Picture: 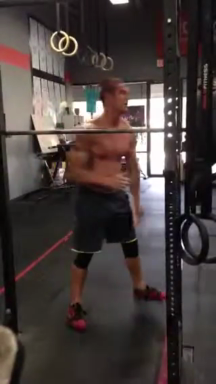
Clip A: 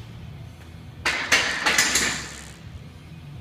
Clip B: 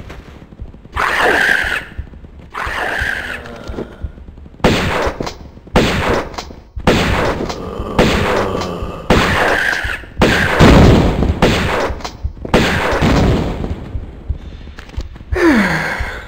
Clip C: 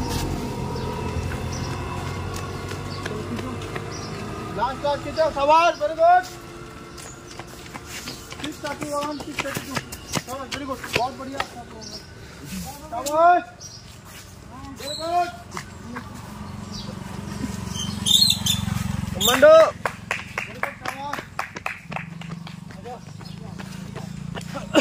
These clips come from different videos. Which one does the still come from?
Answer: A